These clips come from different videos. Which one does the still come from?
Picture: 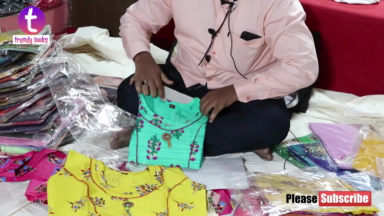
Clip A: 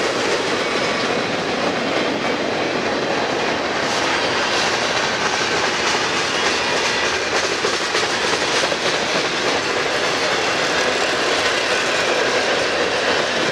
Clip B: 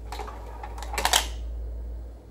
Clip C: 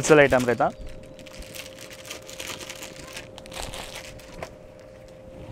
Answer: C